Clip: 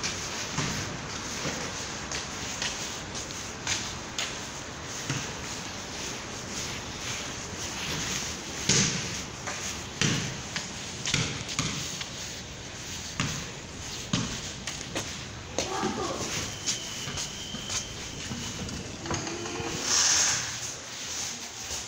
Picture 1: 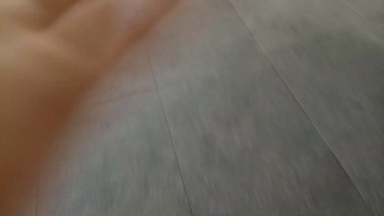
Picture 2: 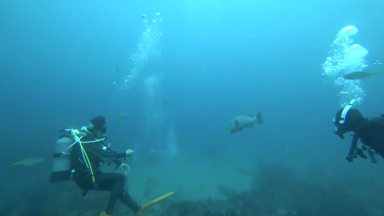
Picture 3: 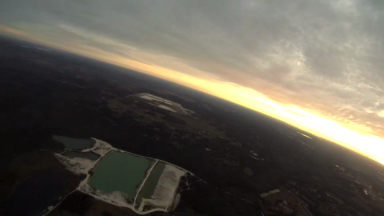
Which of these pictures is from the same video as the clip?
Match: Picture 1